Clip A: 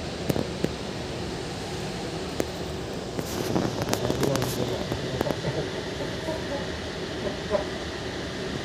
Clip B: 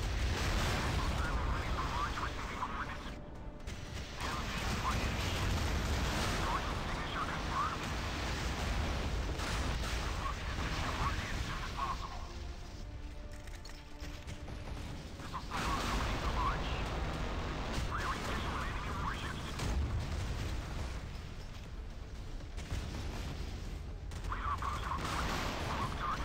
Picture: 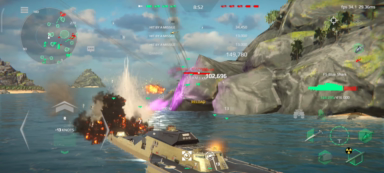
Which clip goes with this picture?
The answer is B